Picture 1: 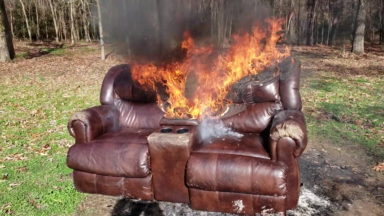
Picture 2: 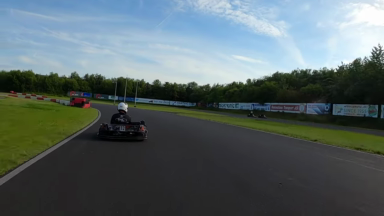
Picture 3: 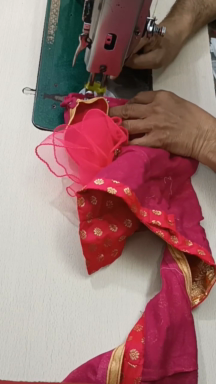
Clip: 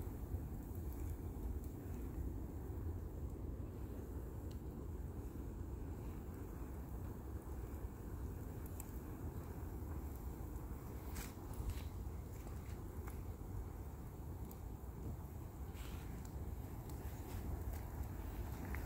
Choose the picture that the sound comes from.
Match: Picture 1